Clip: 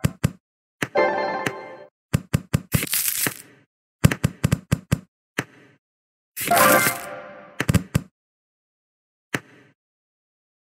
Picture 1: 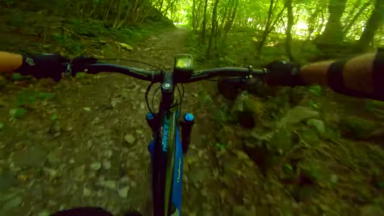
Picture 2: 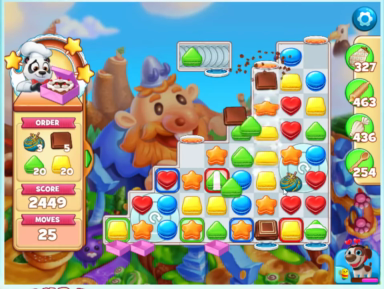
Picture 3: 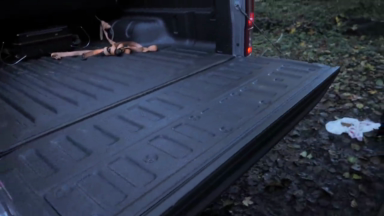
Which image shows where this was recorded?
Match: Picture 2